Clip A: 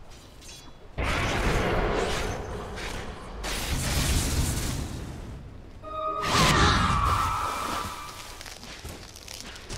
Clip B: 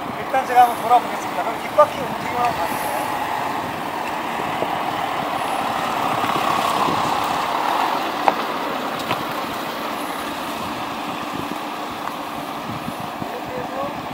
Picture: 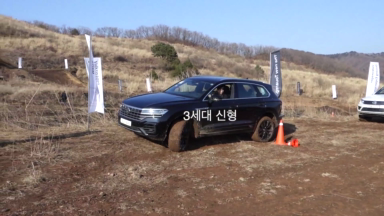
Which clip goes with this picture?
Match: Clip B